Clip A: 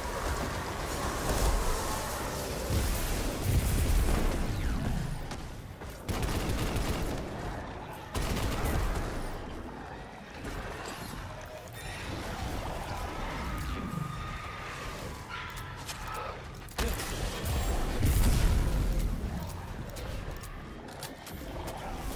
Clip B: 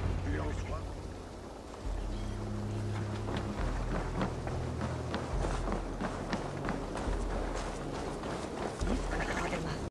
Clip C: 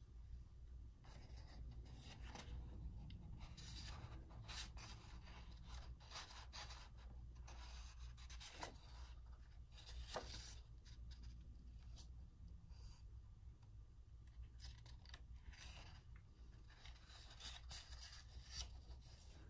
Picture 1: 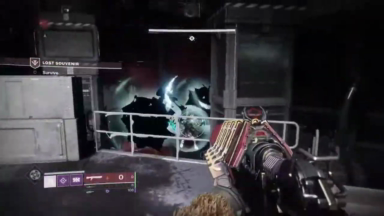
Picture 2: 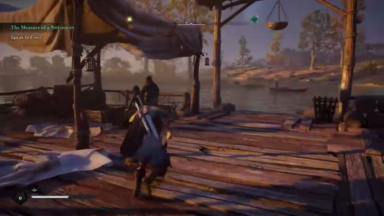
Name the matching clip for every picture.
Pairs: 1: A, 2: B